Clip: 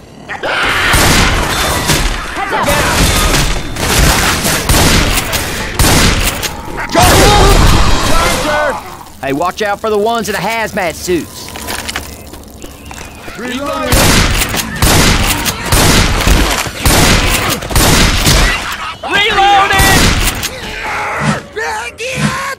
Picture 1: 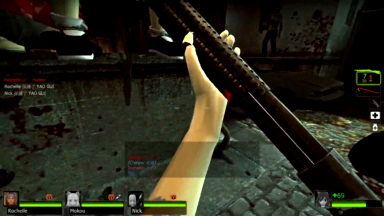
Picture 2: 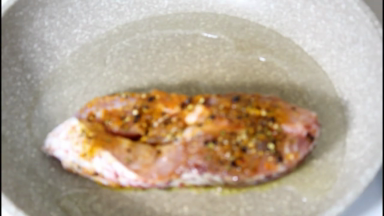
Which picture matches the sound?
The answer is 1